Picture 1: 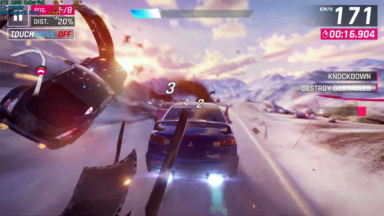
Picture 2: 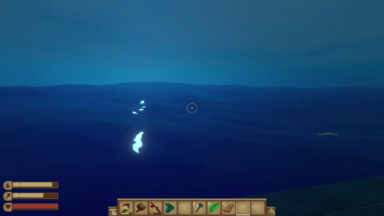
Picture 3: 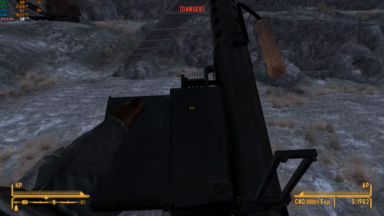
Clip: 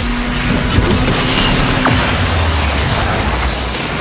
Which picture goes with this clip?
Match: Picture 1